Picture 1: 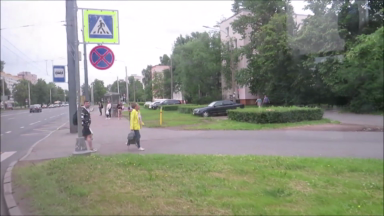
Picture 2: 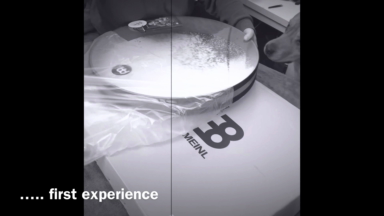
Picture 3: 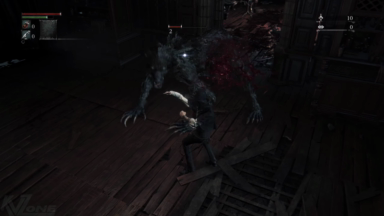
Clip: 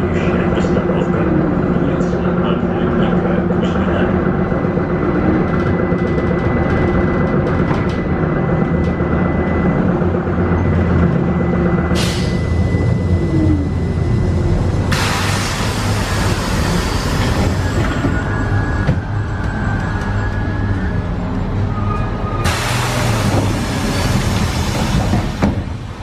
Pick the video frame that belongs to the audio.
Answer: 1